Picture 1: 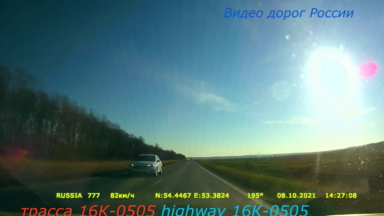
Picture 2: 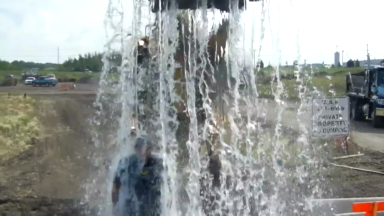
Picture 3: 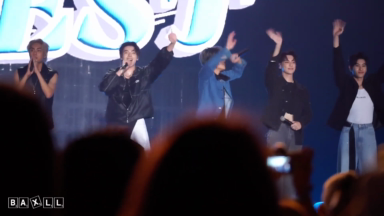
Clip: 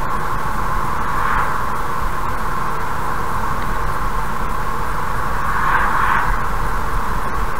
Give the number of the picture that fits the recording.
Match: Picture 1